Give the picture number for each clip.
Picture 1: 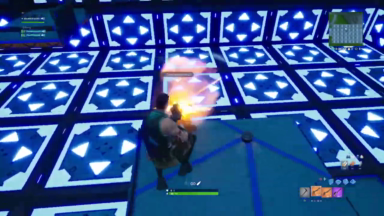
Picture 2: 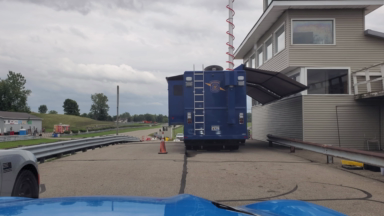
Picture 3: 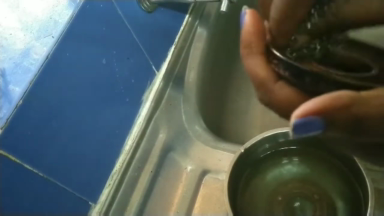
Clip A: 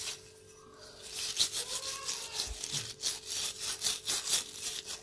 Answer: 3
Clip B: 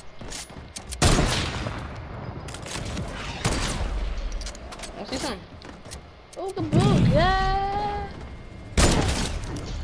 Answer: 1